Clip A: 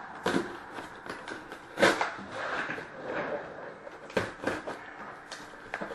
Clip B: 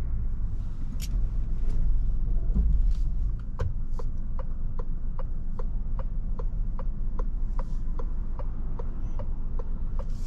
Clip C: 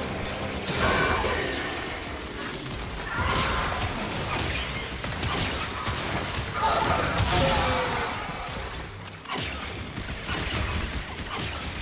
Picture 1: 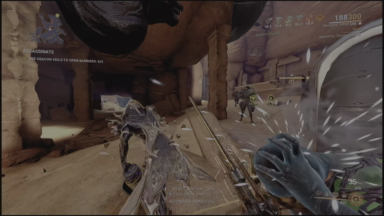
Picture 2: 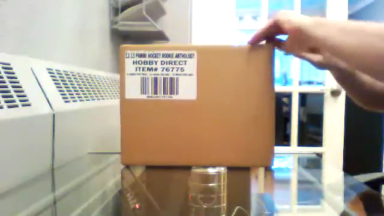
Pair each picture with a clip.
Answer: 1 C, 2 A